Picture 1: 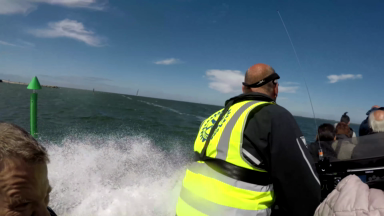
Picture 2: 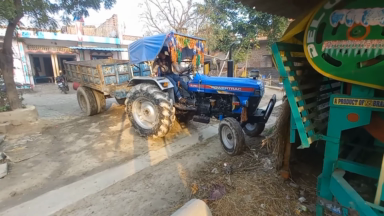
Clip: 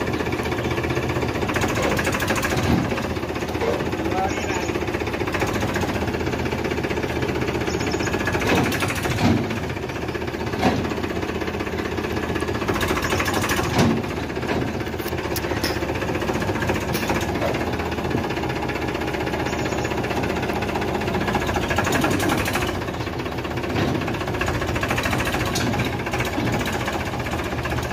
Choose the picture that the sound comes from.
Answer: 2